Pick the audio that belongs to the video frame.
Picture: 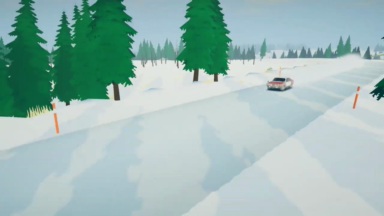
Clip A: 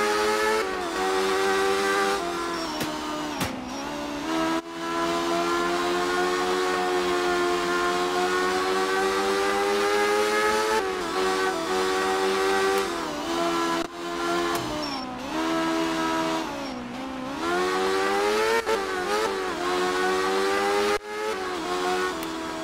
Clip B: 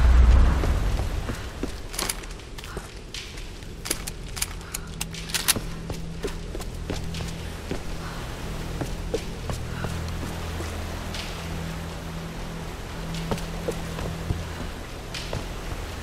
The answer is A